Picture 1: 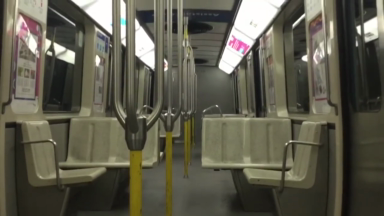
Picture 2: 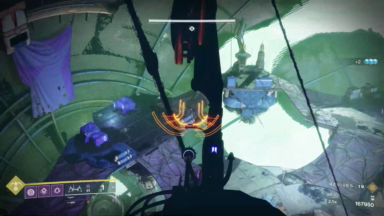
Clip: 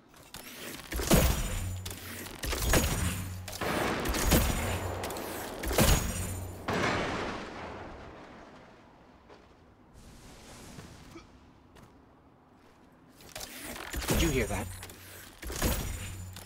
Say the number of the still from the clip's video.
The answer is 2